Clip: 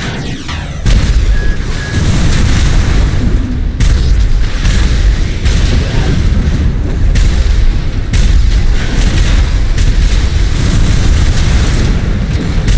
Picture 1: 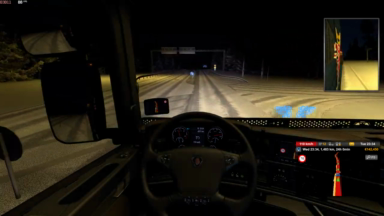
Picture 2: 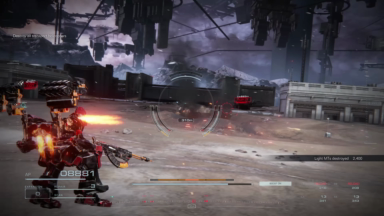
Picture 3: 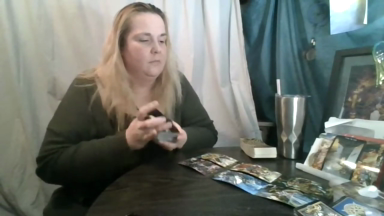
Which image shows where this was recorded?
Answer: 2